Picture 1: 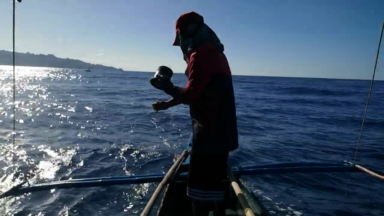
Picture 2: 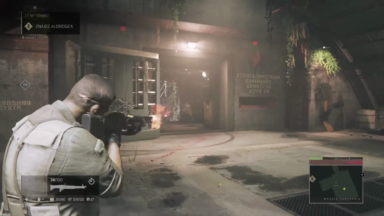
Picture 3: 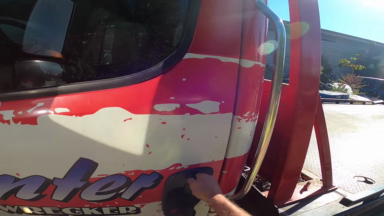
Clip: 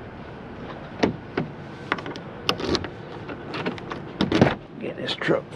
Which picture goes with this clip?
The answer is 3